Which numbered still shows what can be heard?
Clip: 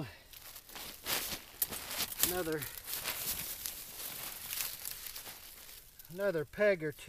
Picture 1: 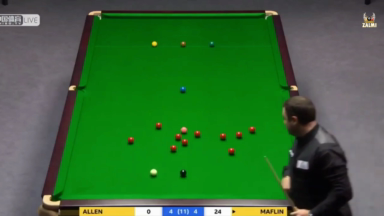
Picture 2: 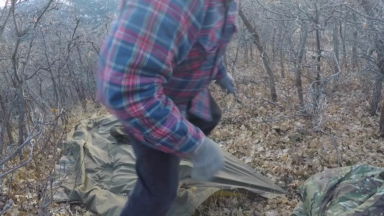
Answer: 2